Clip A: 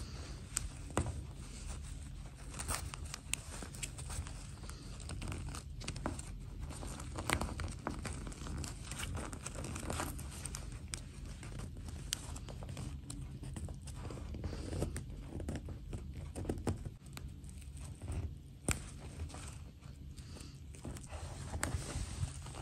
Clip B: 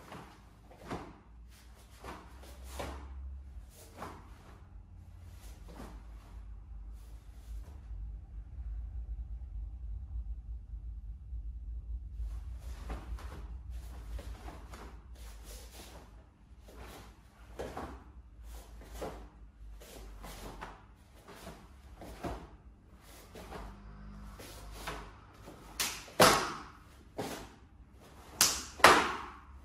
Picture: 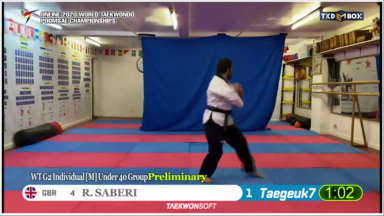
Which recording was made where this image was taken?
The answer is B